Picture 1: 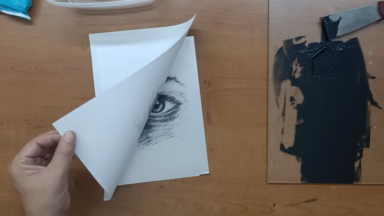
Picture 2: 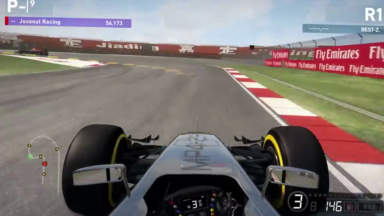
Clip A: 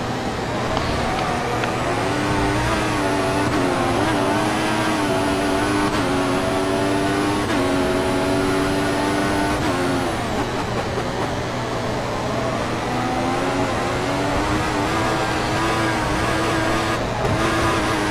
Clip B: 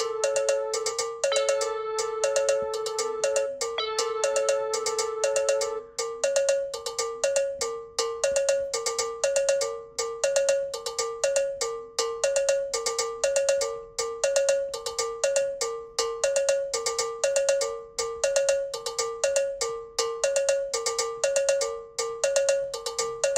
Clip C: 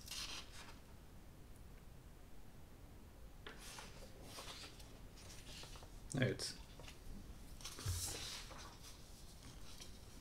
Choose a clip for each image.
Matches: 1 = C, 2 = A